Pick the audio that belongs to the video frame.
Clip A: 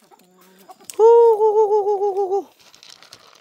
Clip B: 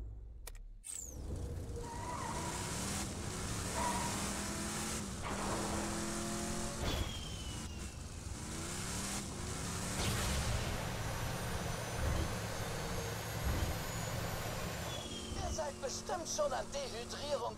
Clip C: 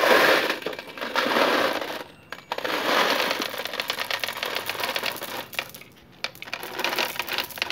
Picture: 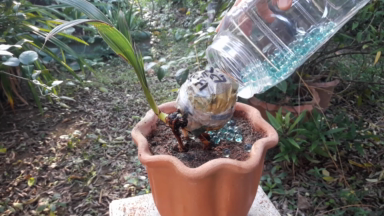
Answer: C